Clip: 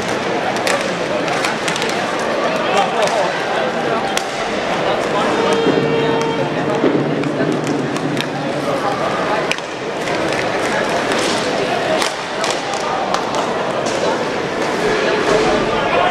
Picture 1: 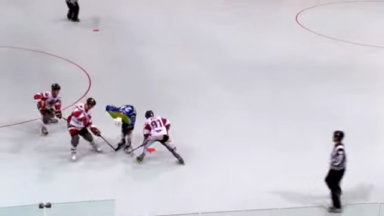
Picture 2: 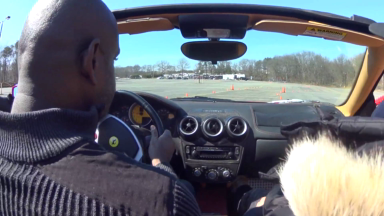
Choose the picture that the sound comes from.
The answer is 1